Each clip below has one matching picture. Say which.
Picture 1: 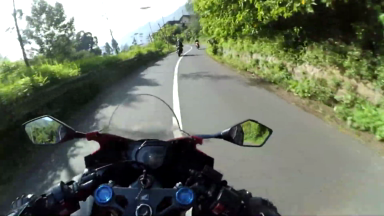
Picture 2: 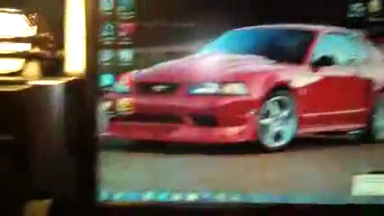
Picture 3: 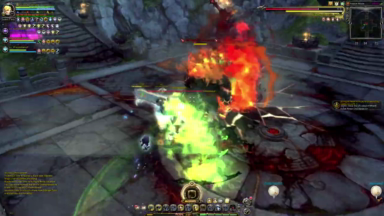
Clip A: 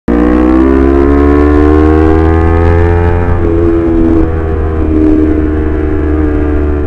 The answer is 1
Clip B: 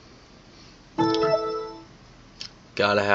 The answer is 2